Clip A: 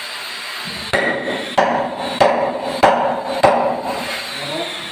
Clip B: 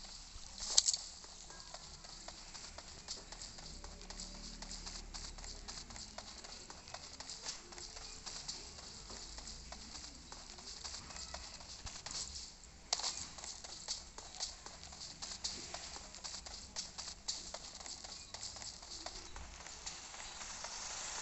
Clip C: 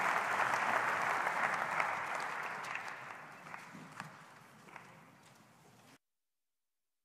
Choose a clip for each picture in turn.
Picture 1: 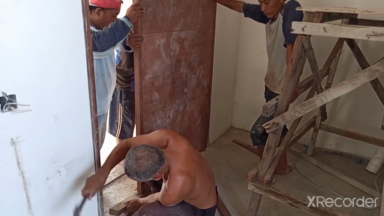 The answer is A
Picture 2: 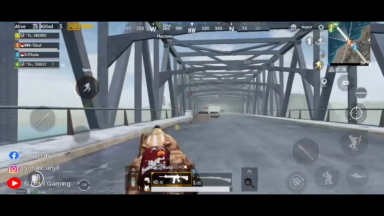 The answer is B